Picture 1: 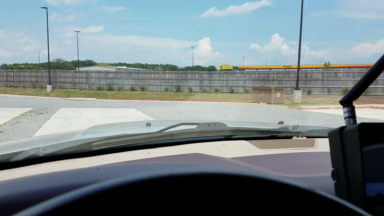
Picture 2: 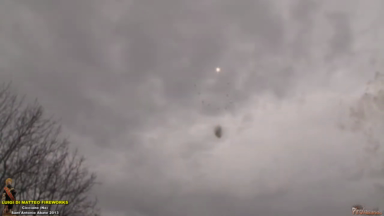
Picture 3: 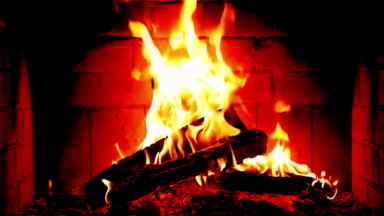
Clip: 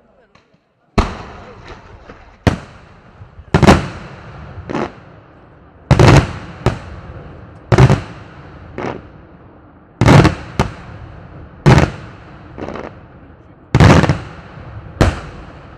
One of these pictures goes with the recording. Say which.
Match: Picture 2